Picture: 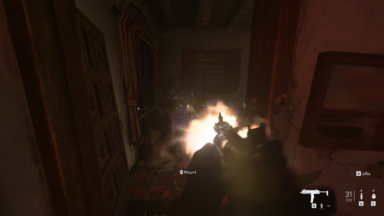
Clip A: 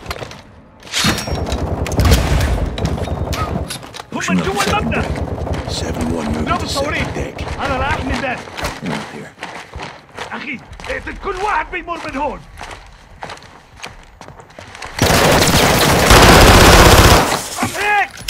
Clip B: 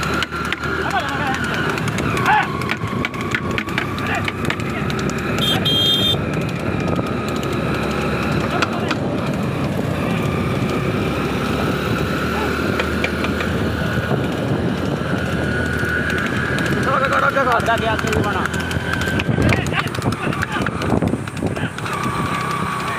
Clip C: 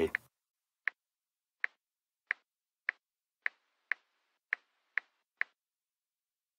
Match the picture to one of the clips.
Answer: A